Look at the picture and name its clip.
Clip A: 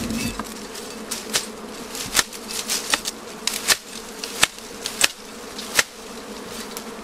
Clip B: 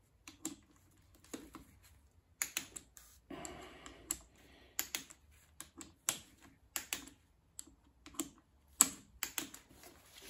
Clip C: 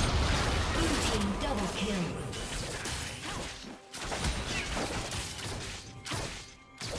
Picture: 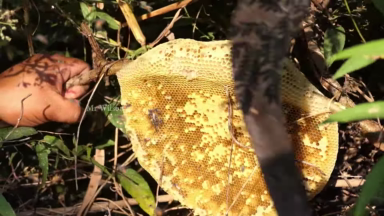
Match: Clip A